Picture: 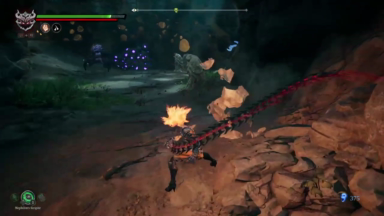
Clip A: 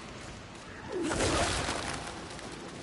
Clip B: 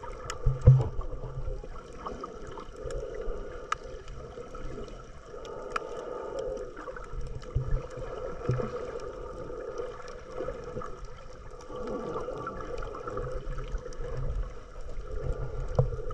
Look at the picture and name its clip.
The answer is A